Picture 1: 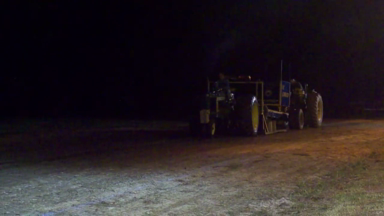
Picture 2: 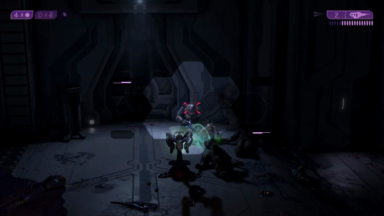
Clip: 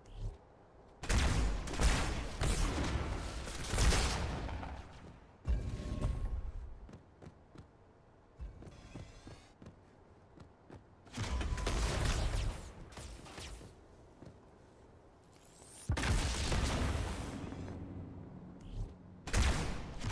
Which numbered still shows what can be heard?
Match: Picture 2